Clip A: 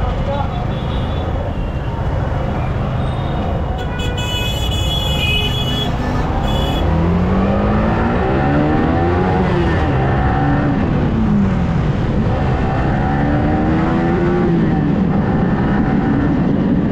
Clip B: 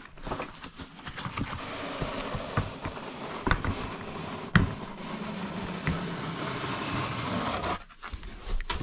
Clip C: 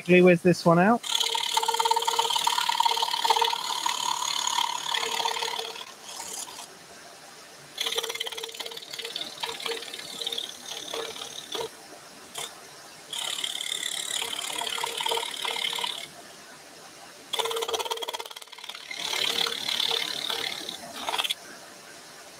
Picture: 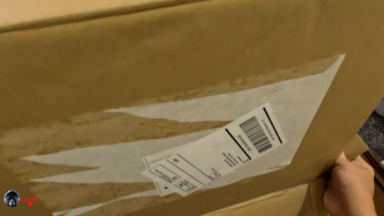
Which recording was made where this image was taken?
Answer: B